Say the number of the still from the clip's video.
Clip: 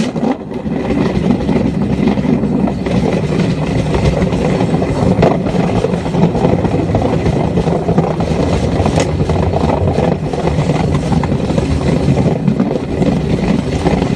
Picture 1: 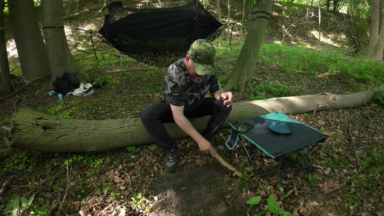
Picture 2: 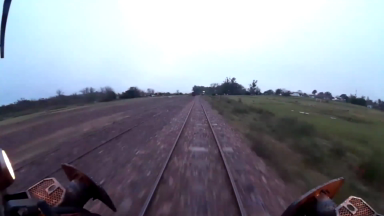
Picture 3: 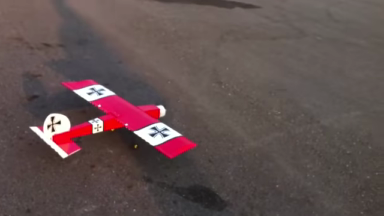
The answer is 2